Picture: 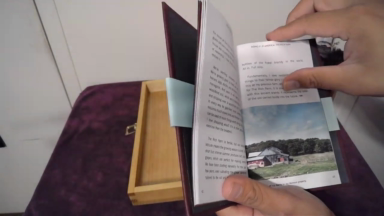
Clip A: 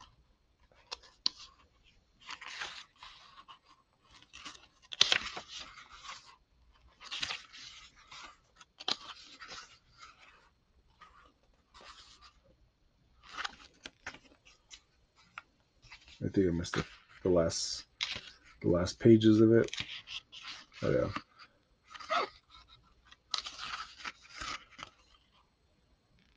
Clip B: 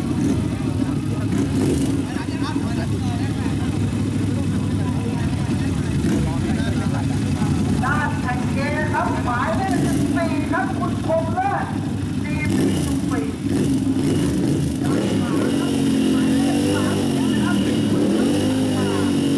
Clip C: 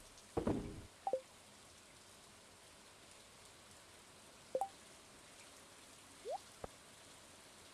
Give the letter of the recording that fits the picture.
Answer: A